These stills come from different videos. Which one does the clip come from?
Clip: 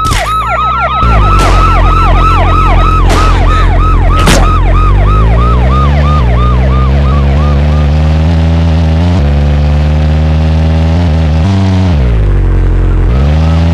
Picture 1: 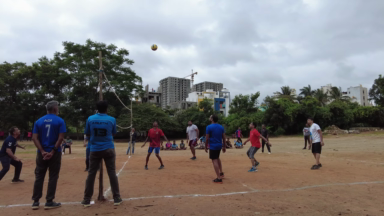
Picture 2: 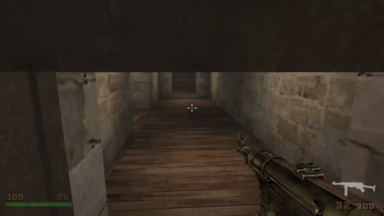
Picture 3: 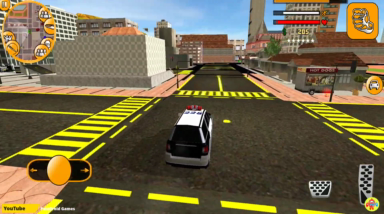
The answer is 3